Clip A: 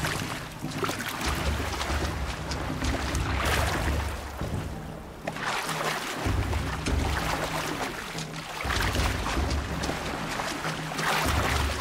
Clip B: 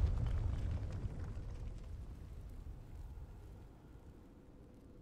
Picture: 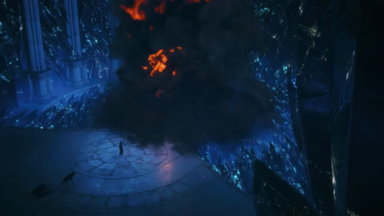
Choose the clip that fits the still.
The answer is B